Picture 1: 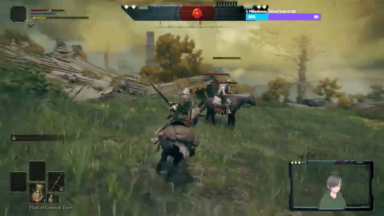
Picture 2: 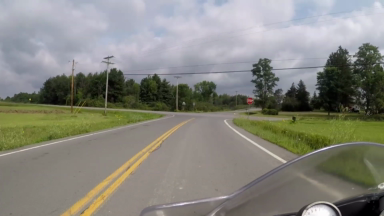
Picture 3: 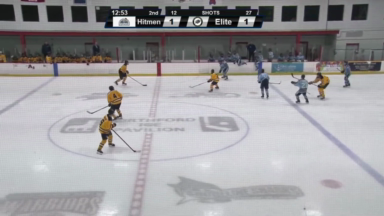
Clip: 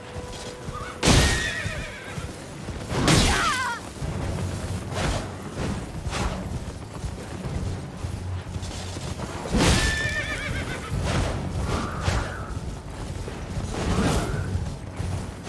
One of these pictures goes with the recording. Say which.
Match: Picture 1